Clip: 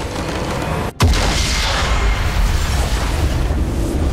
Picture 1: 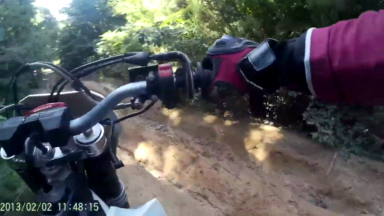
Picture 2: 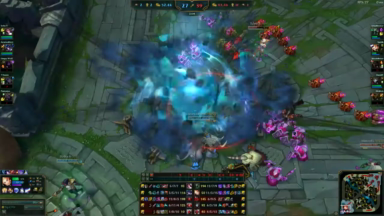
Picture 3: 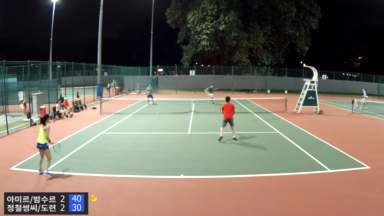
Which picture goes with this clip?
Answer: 2